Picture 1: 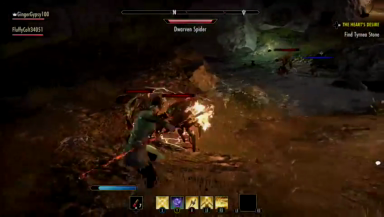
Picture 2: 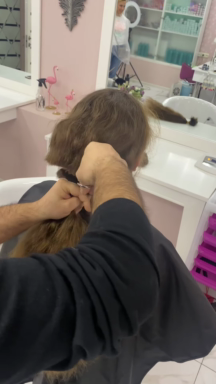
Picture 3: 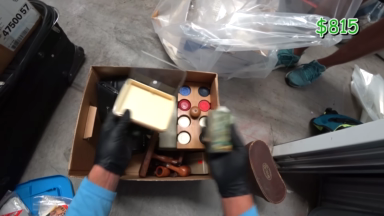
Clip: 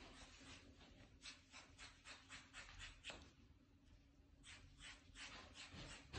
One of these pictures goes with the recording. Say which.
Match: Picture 2